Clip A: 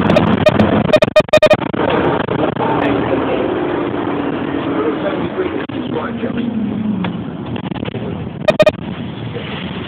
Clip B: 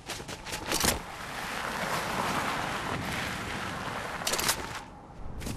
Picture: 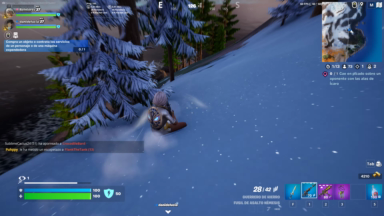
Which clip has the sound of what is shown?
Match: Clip B